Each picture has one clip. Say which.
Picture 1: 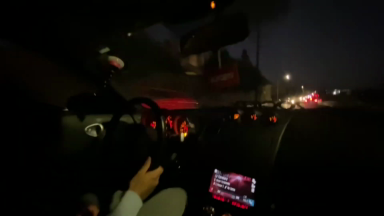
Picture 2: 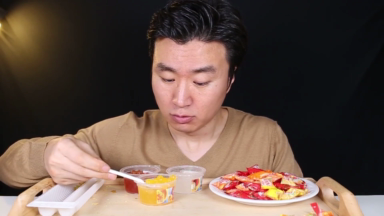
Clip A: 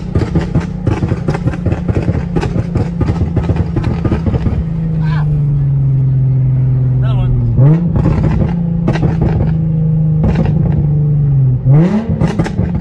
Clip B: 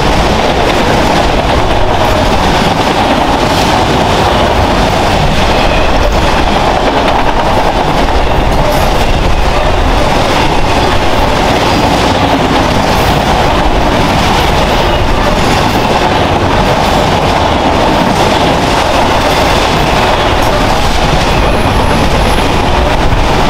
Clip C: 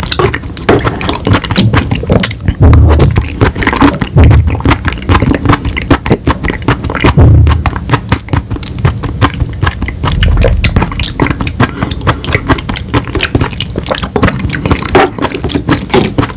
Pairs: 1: A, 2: C